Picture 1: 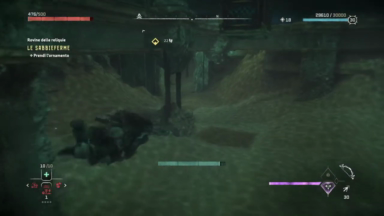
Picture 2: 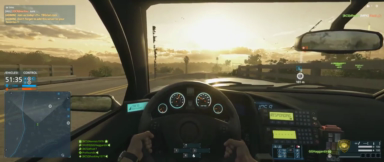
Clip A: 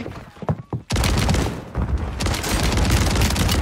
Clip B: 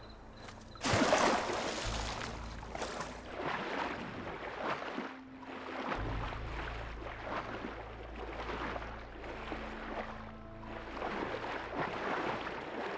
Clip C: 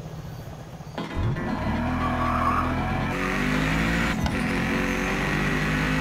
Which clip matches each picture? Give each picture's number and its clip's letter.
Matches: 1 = B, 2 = C